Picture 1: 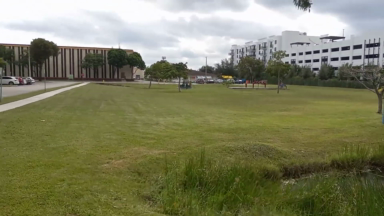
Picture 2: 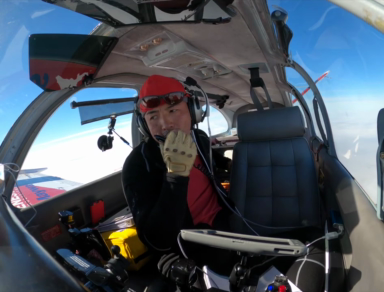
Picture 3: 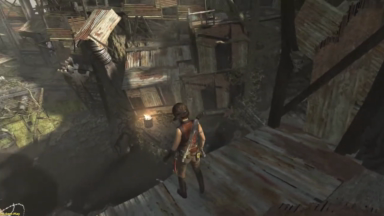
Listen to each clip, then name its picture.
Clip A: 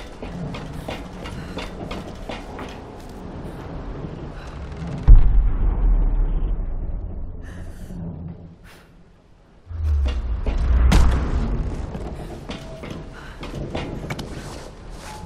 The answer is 3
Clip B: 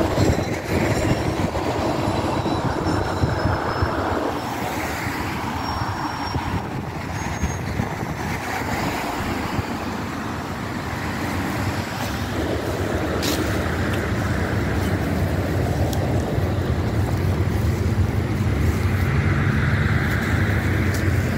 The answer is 1